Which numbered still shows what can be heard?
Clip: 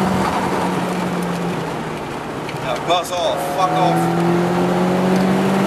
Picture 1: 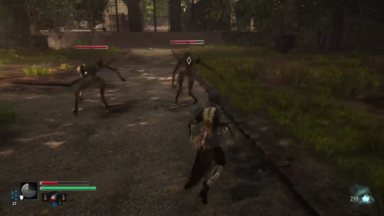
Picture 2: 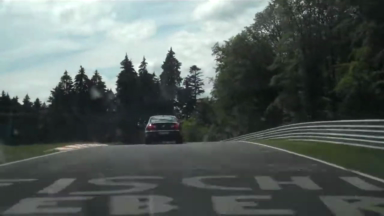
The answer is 2